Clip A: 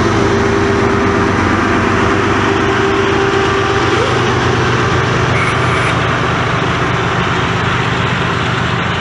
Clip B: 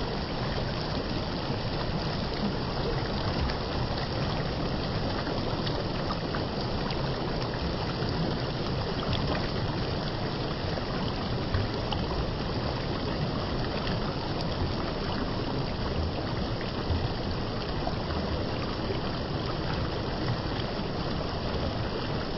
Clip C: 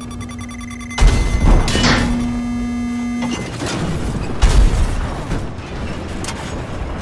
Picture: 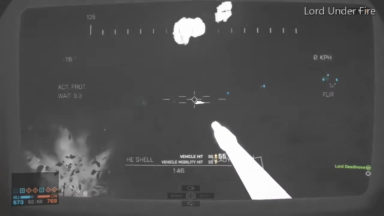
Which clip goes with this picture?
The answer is C